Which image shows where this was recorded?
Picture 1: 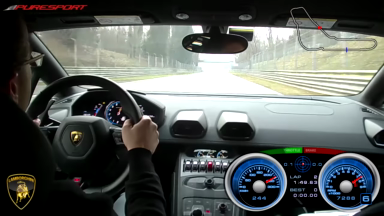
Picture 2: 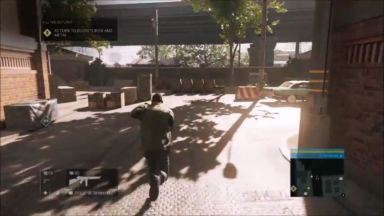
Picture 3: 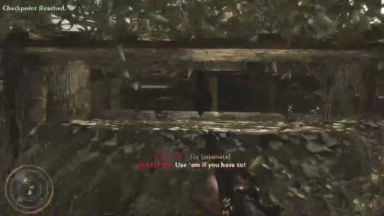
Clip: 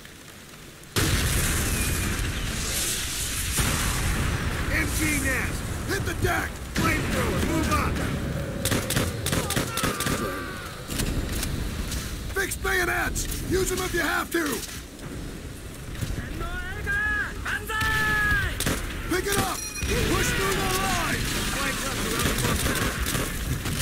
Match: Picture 3